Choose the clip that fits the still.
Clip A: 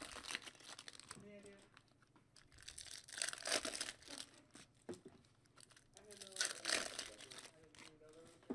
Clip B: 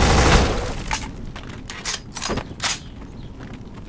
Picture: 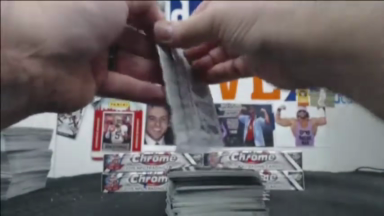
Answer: A